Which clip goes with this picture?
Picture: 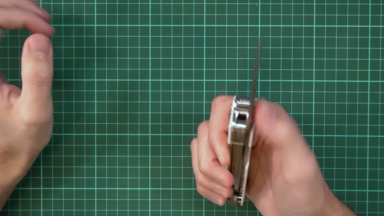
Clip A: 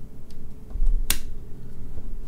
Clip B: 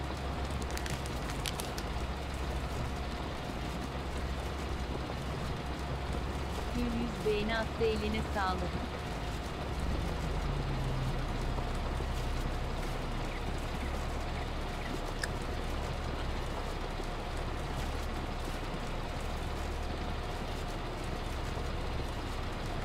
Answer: A